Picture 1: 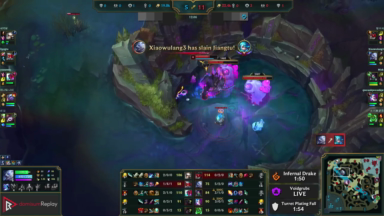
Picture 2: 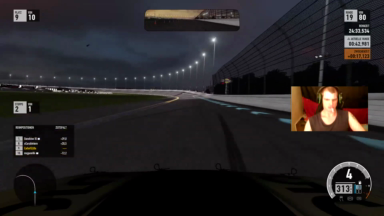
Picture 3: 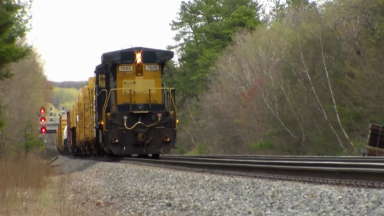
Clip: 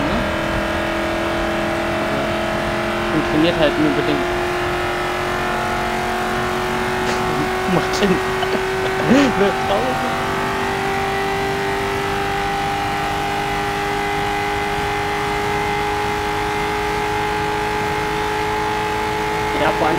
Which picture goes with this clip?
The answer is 2